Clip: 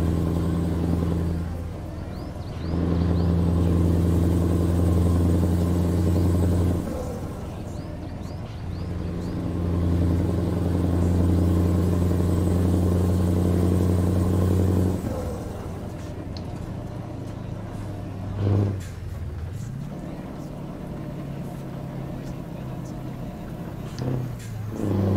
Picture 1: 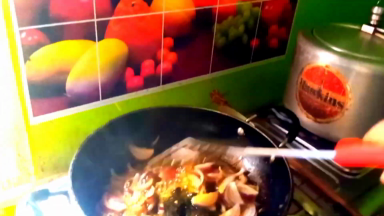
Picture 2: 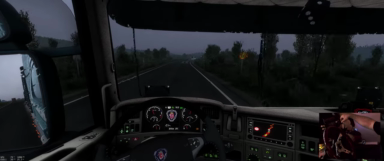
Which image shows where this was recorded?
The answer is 2